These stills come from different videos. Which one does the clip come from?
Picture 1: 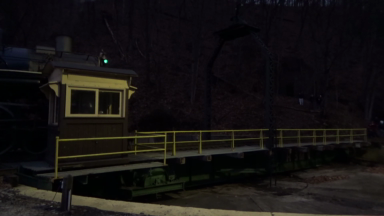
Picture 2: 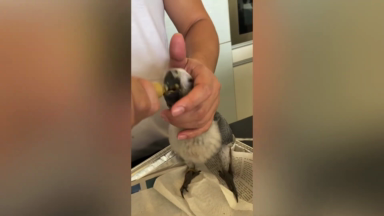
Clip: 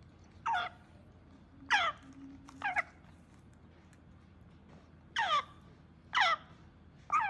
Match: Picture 2